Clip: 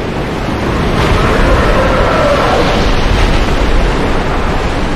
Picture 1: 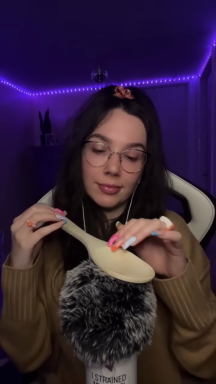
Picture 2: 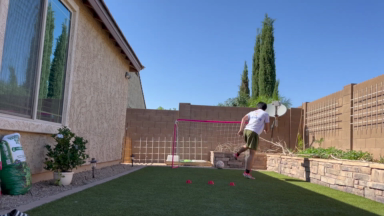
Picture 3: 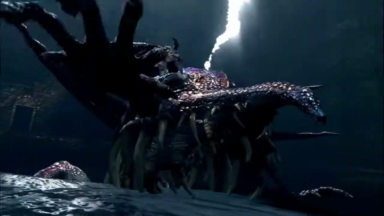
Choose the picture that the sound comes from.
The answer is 3